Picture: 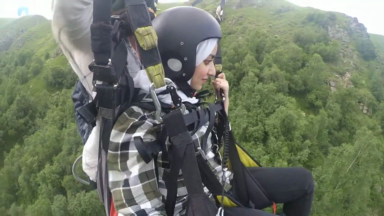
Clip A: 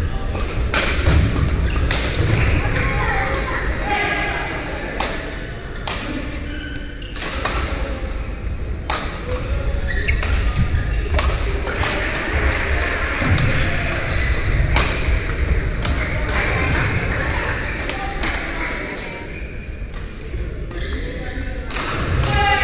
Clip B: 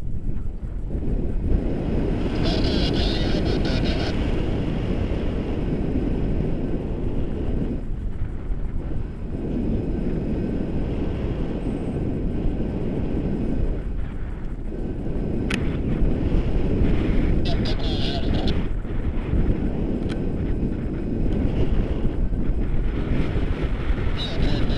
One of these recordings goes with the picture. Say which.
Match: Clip B